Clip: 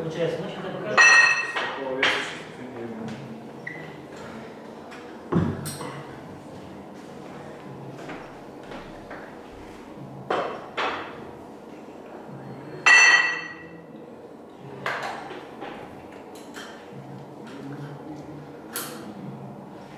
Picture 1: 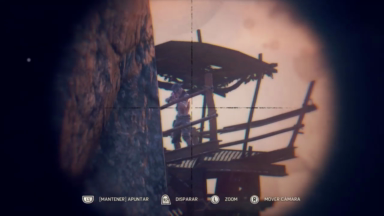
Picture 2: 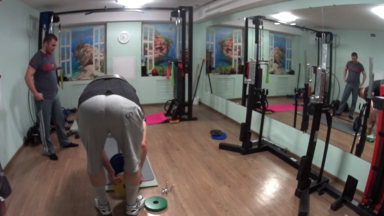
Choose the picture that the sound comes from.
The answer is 2